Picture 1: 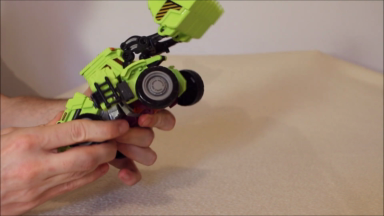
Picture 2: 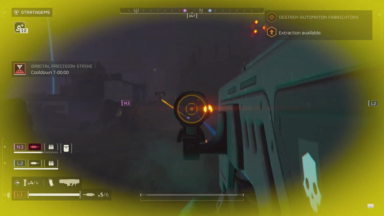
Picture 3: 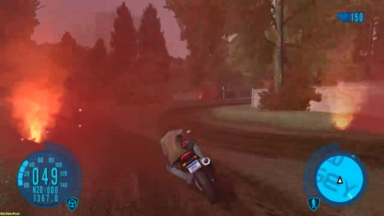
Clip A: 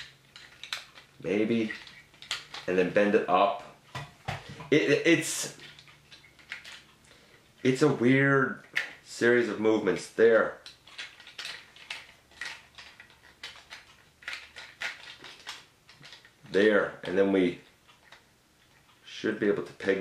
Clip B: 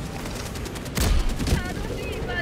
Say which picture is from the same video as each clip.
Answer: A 1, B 2